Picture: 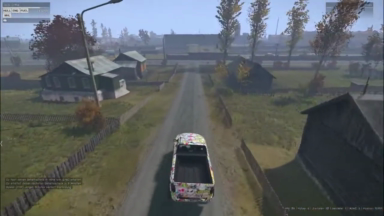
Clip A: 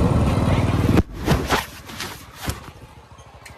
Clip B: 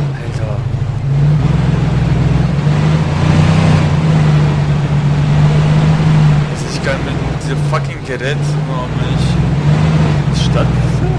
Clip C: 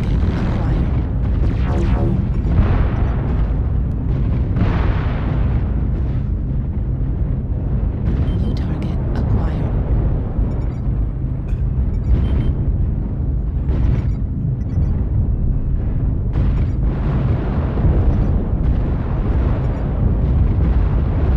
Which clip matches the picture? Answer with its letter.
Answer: B